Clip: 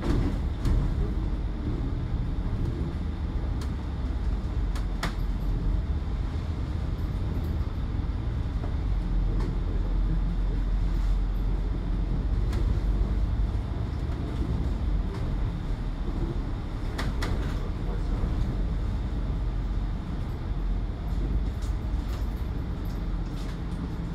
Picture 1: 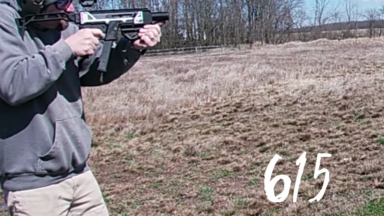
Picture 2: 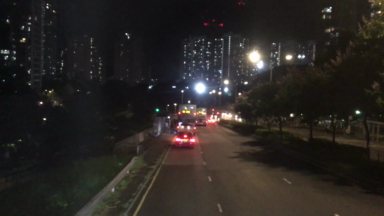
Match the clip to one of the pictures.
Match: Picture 2